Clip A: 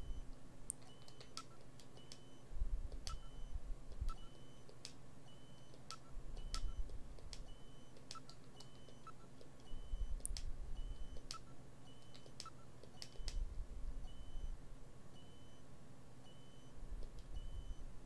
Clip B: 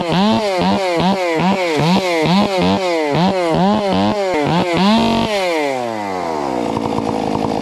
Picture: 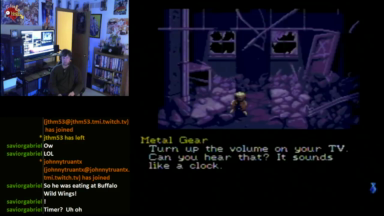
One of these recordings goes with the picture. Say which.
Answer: A